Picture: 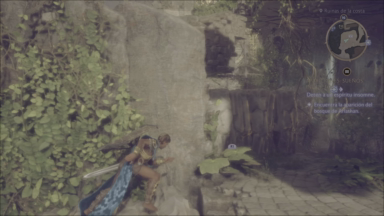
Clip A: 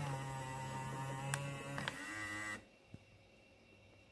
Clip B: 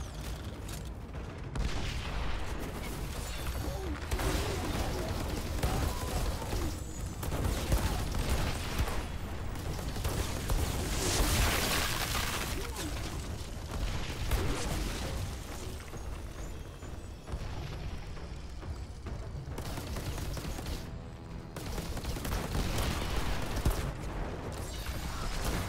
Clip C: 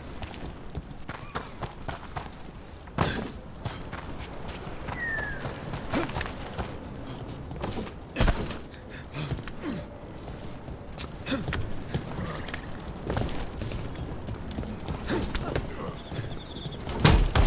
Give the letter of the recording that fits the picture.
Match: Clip C